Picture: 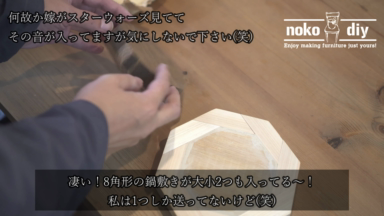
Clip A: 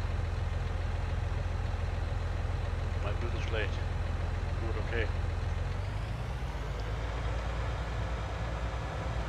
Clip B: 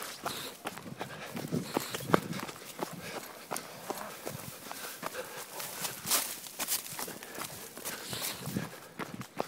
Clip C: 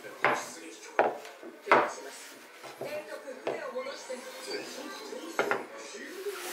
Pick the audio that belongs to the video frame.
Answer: C